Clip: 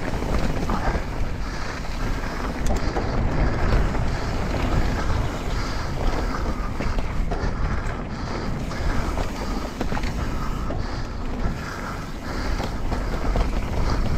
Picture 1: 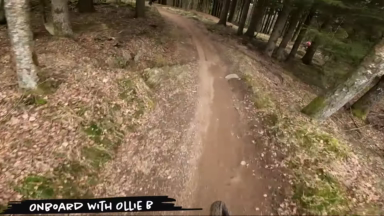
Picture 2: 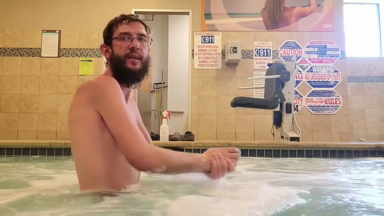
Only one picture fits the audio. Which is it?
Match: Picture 1